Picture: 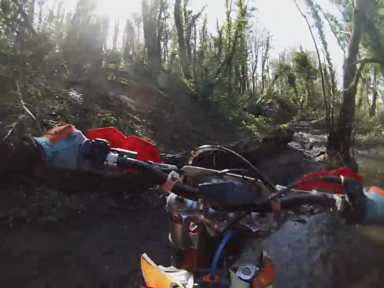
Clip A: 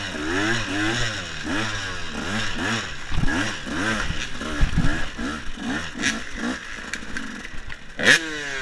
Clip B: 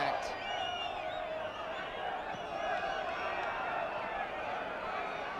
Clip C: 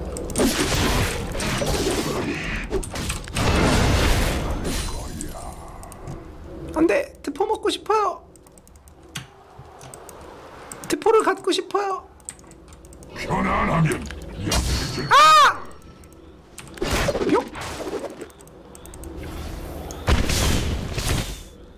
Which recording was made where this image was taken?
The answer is A